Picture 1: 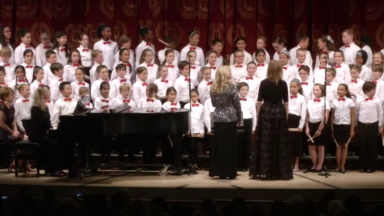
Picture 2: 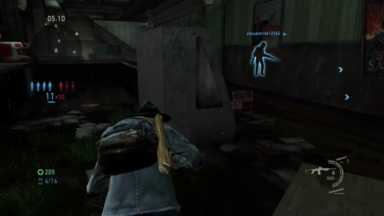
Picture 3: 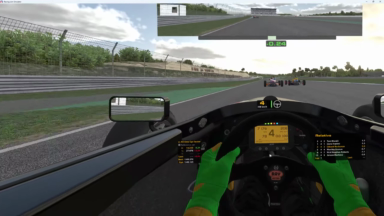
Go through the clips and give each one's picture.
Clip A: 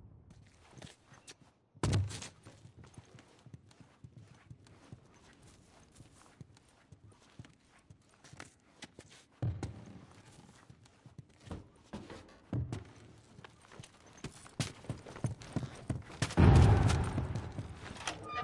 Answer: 2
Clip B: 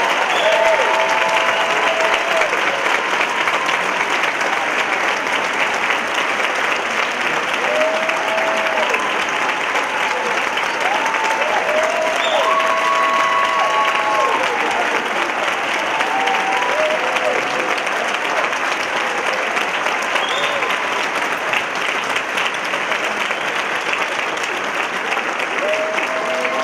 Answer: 1